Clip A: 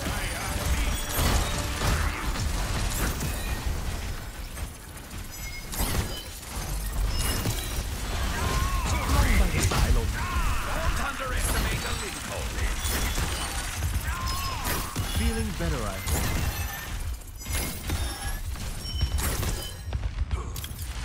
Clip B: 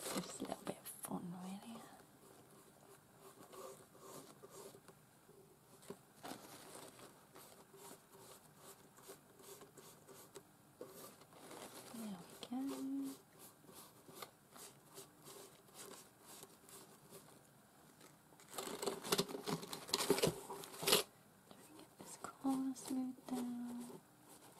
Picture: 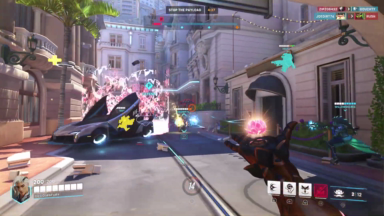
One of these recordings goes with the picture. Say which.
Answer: A